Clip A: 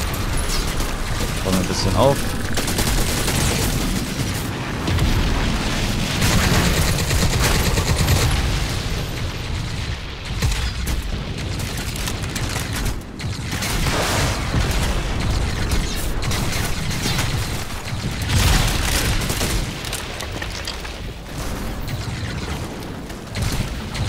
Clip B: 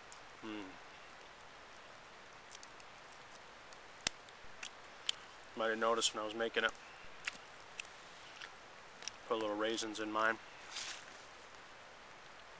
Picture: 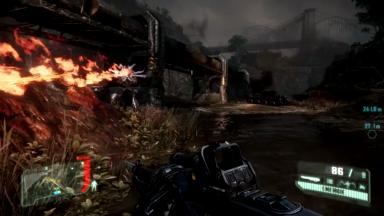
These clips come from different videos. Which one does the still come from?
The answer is A